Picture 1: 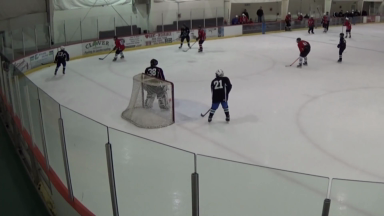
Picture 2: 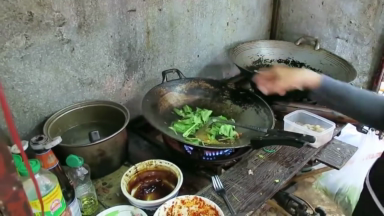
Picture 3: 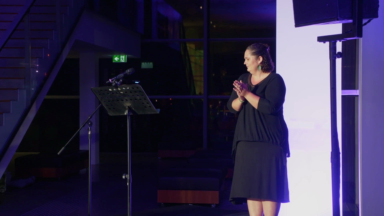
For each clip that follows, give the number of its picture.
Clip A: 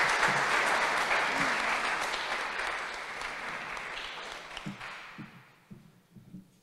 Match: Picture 3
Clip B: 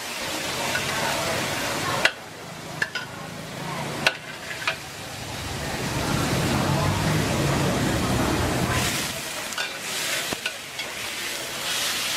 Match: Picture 2